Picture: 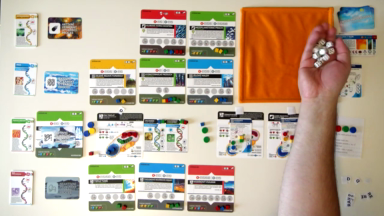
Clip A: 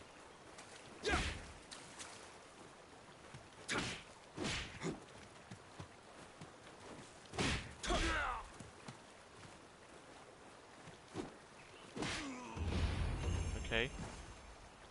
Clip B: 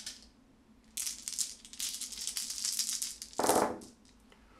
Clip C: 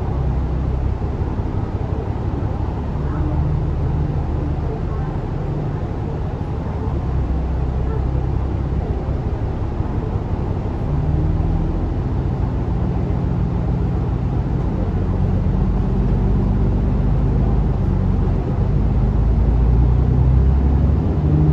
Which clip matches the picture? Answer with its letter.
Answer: B